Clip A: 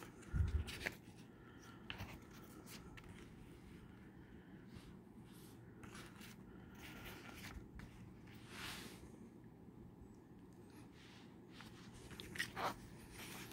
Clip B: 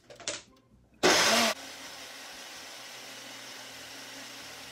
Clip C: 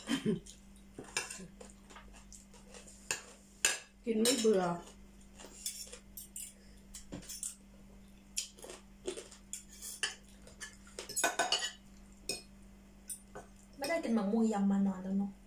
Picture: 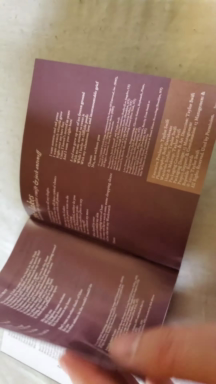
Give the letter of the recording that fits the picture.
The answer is A